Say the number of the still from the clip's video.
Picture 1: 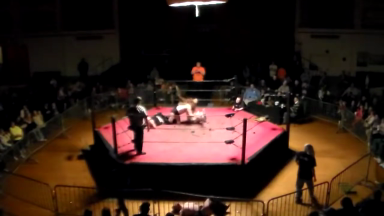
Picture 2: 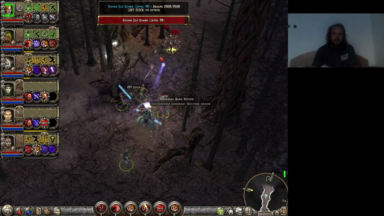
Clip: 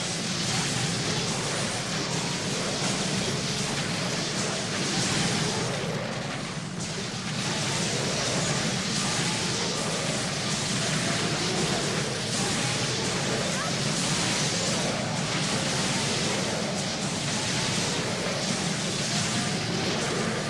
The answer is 2